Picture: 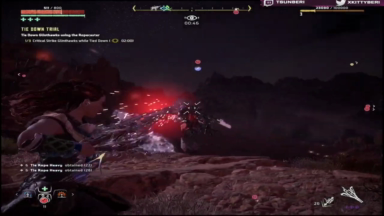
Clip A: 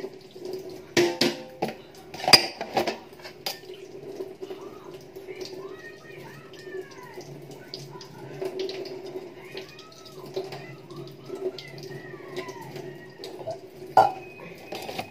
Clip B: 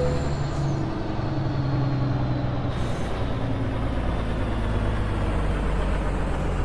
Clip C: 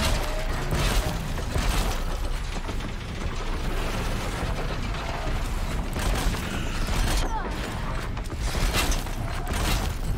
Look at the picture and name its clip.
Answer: C